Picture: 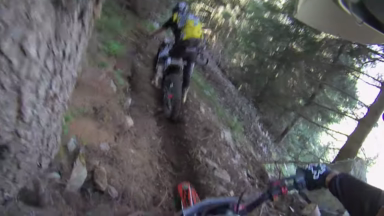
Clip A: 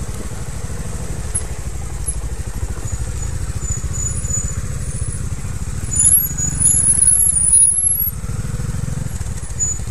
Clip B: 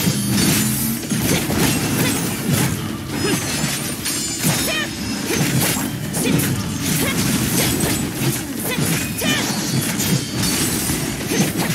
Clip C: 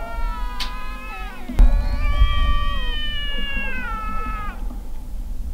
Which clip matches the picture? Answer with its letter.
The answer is A